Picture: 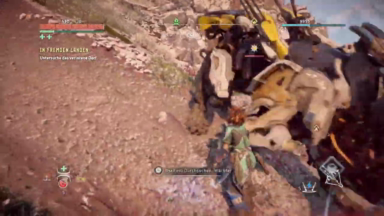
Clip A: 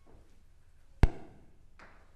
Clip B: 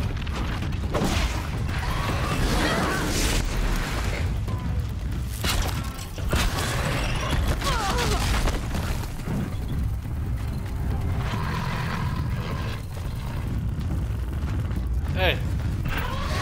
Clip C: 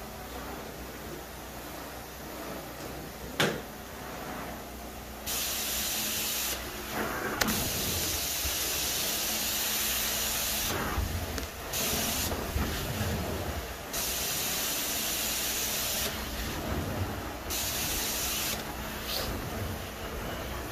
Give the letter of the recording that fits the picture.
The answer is B